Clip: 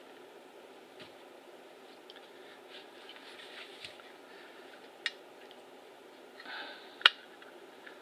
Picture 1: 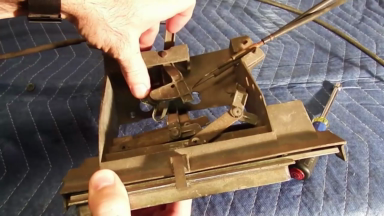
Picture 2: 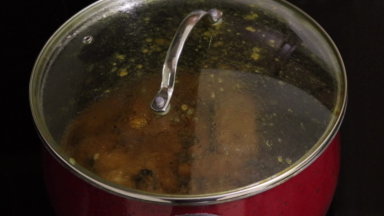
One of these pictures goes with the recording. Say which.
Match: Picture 1